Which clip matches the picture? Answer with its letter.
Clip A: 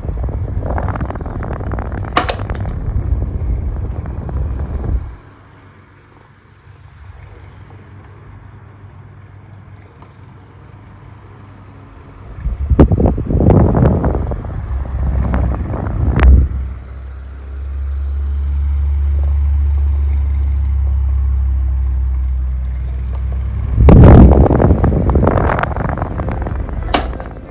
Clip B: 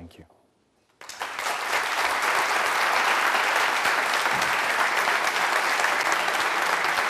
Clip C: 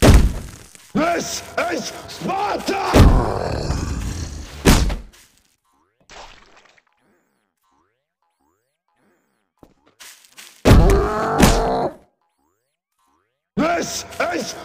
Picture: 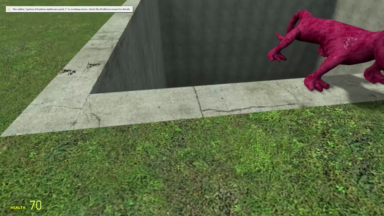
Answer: C